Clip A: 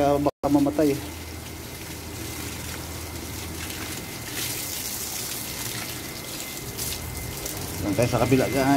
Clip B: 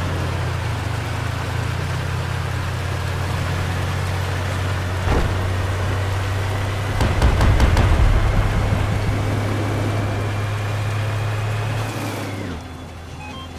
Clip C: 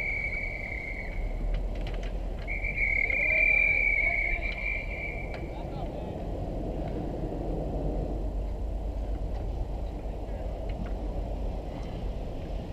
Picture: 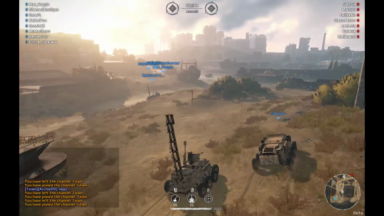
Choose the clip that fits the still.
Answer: B